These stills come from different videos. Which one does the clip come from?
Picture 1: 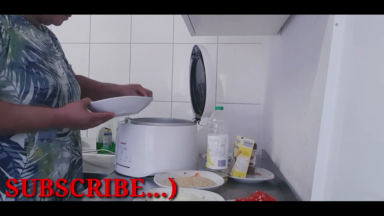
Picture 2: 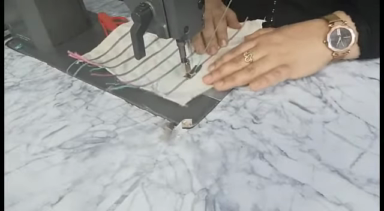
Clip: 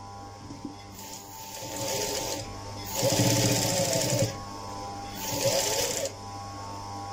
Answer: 2